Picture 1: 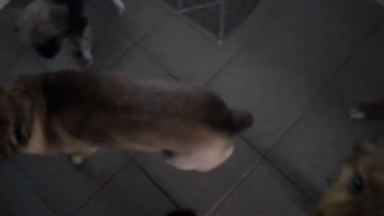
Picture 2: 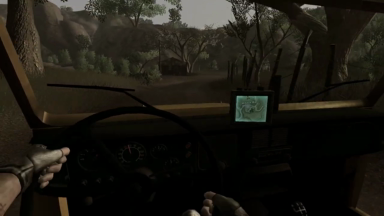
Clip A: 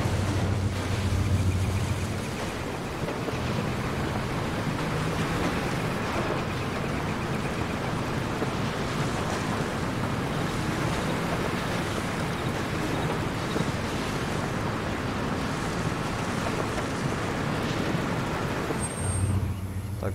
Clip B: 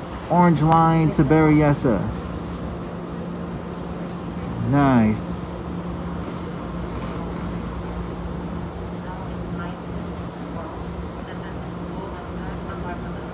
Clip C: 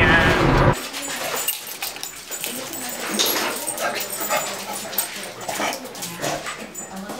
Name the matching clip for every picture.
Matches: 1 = C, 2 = A